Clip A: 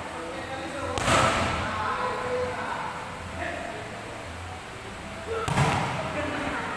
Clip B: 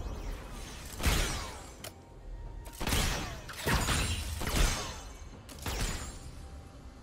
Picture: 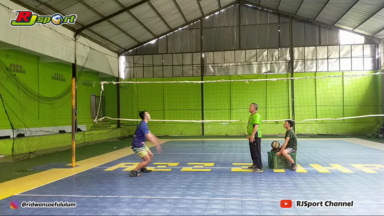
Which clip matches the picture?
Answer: A